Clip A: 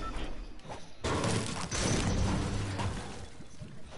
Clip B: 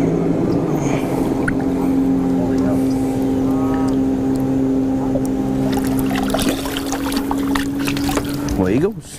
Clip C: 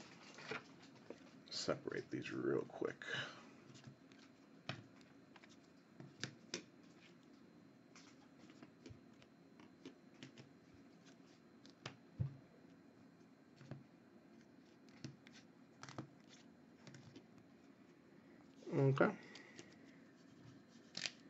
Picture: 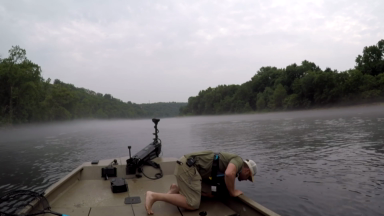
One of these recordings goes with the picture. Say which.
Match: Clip B